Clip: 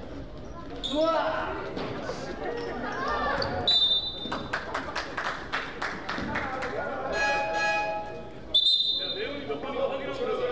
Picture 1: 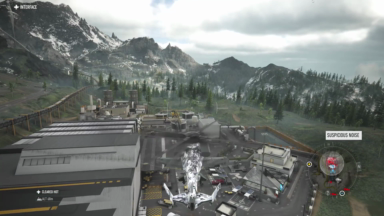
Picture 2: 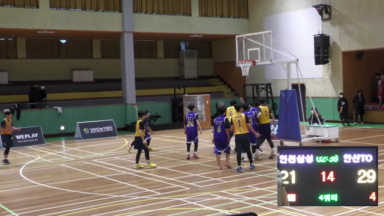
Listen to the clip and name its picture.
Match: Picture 2